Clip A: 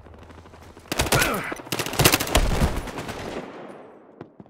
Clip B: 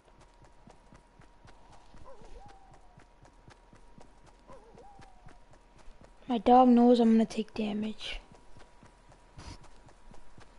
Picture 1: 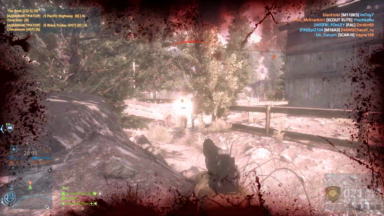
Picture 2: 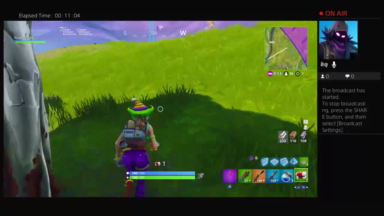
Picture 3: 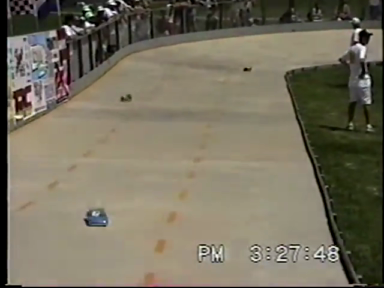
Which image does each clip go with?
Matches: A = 1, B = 2